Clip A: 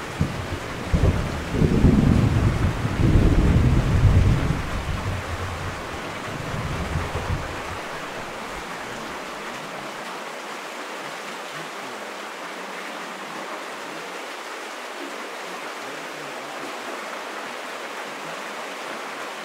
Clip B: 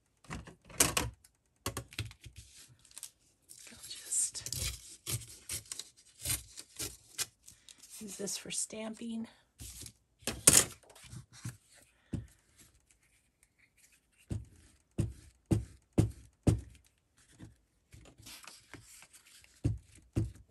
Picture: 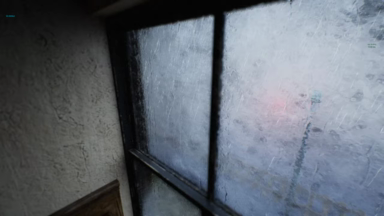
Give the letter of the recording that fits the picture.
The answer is A